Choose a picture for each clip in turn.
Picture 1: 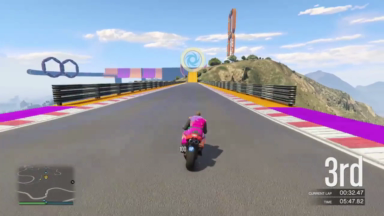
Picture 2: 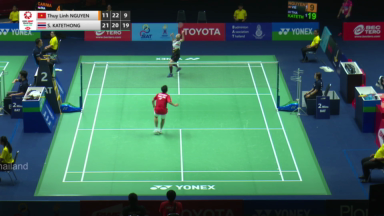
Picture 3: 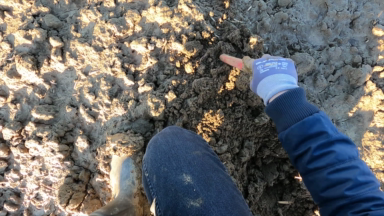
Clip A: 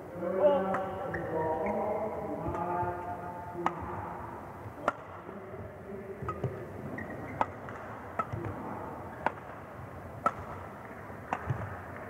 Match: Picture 2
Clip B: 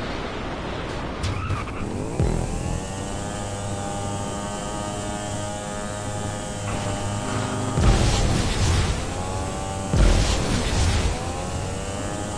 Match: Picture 1